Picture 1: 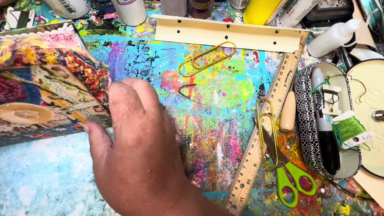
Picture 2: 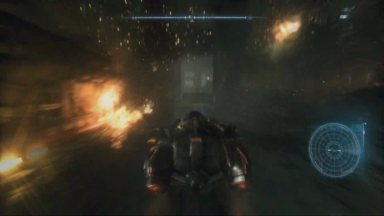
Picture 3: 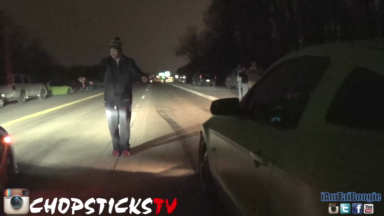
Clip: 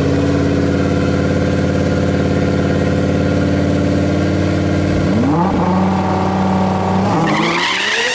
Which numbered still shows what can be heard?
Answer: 3